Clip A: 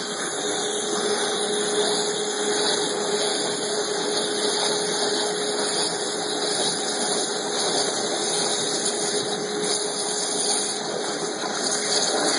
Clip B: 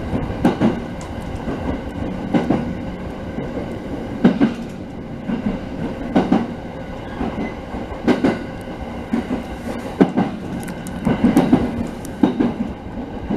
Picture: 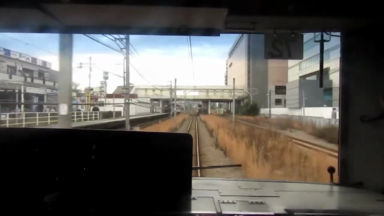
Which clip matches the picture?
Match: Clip B